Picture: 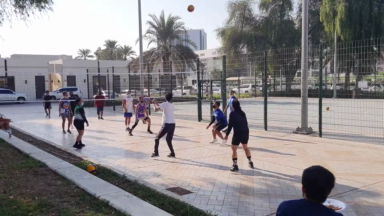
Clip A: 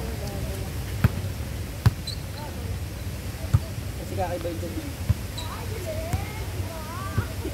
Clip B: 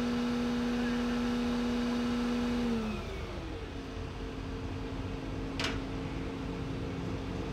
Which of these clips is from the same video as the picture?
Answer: A